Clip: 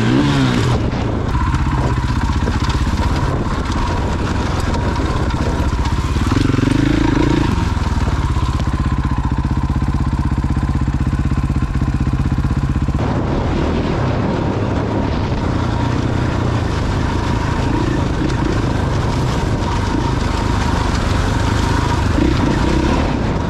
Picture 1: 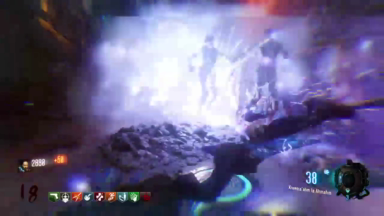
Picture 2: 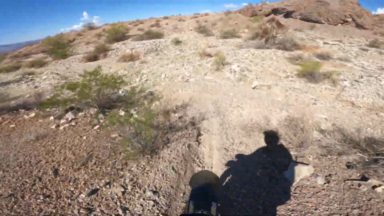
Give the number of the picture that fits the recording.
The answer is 2